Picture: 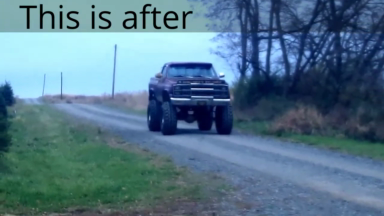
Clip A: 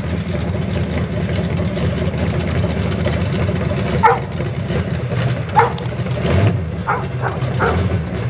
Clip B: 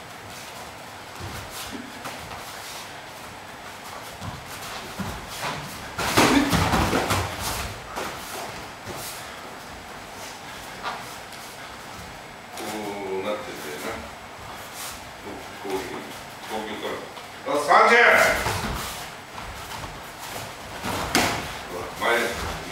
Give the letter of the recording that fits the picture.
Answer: A